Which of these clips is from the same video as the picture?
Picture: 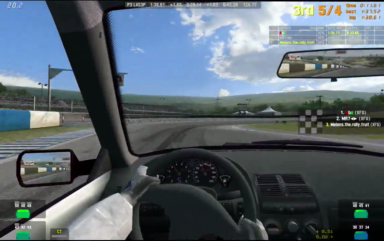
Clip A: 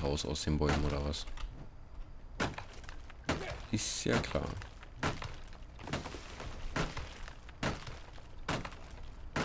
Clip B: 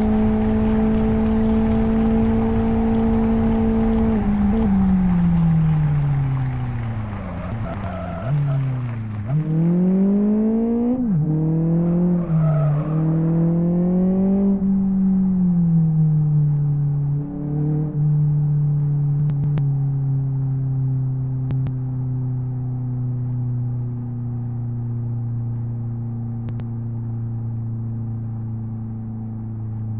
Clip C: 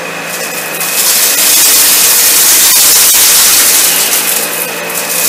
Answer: B